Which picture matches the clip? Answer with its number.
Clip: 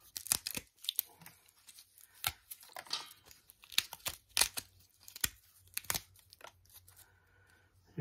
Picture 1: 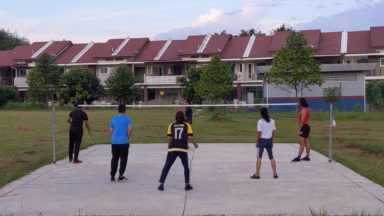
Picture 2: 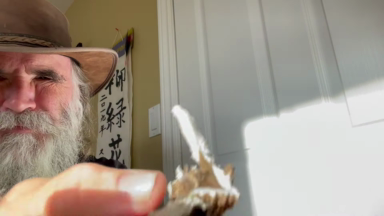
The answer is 2